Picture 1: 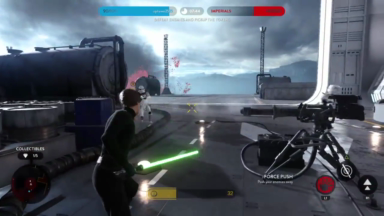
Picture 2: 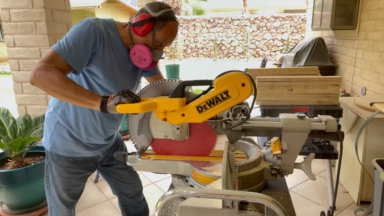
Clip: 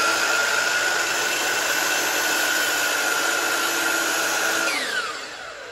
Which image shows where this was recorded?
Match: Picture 2